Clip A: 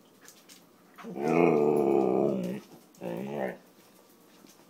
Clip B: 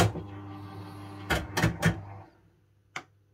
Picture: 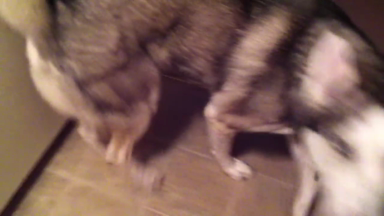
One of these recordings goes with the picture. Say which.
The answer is A